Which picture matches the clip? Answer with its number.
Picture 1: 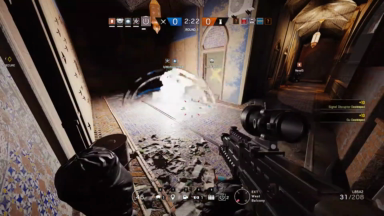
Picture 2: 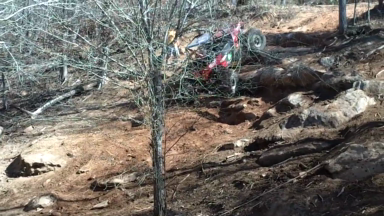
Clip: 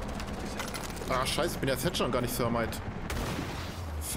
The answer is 1